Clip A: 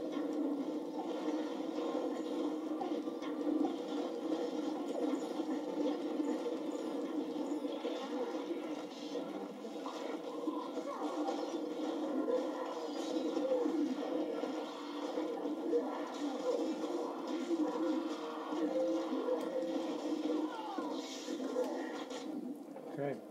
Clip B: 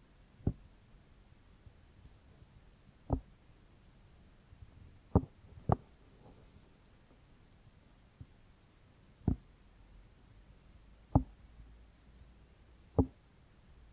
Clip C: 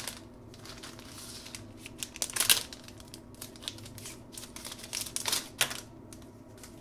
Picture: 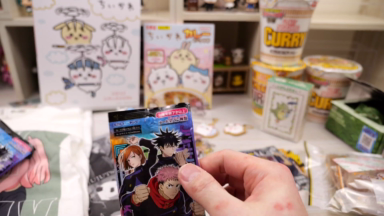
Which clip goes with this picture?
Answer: C